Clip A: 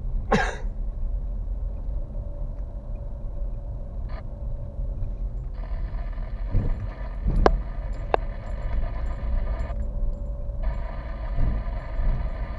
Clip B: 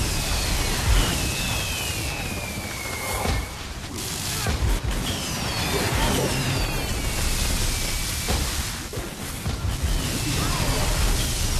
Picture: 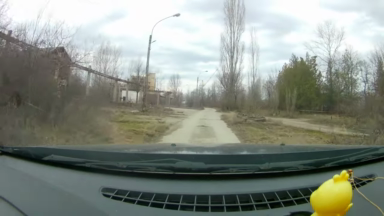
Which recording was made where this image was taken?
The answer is A